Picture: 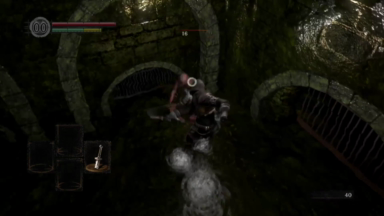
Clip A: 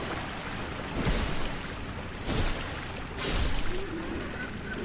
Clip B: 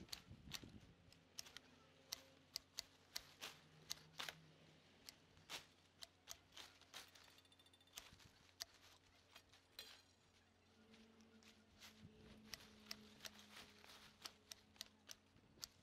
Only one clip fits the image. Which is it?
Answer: A